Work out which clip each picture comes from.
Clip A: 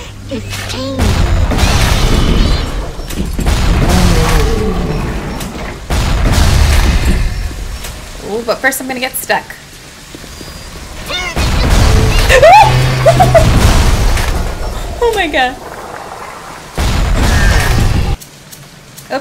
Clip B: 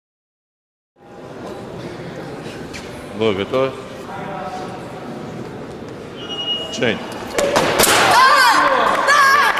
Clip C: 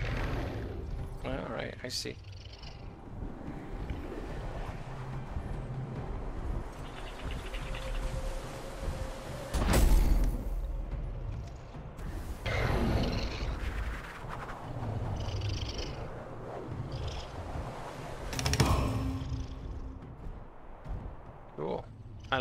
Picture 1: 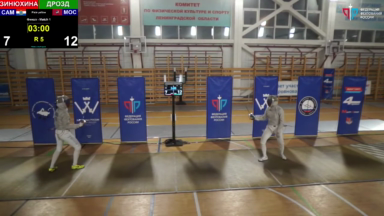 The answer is B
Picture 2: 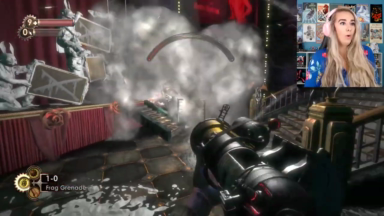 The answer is A